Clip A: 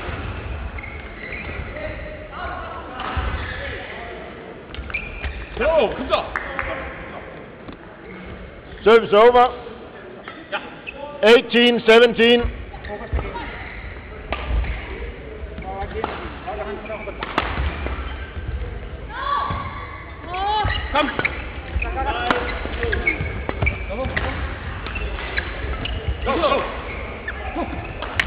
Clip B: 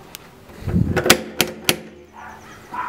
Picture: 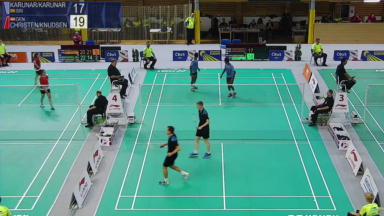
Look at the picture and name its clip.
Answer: A